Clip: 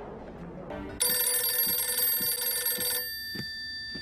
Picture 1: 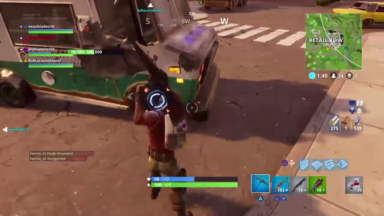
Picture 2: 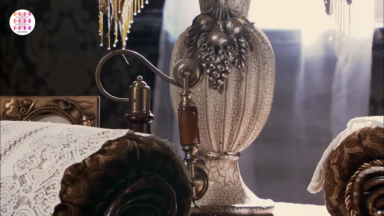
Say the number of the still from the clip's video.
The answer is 2